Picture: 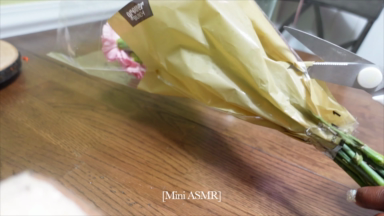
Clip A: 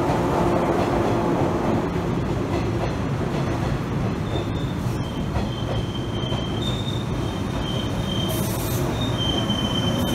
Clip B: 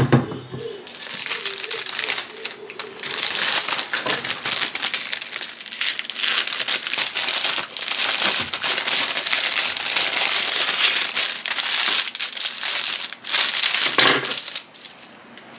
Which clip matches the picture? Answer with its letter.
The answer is B